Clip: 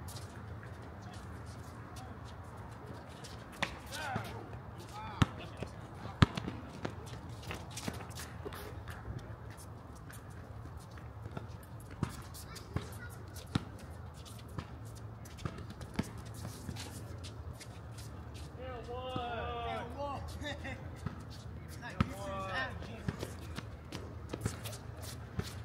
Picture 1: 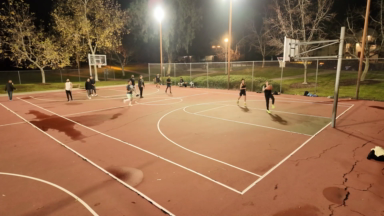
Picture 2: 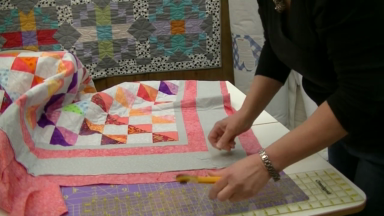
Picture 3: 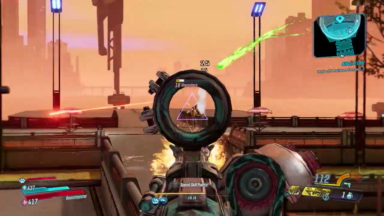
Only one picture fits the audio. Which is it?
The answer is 1